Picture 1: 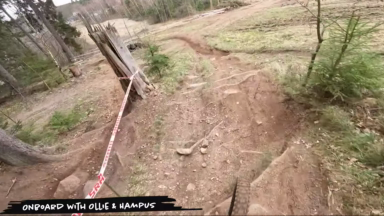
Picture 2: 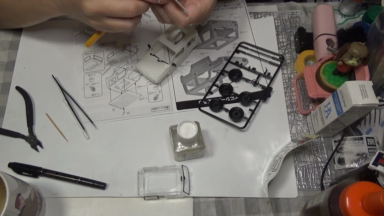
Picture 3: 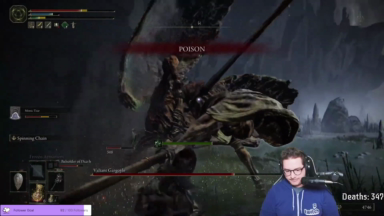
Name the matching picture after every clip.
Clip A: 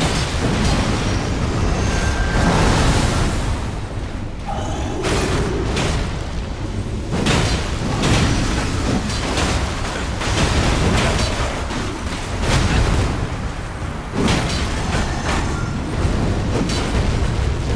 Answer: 3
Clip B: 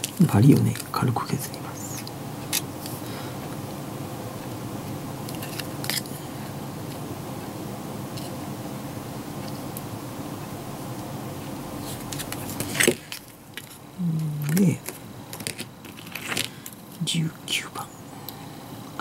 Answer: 2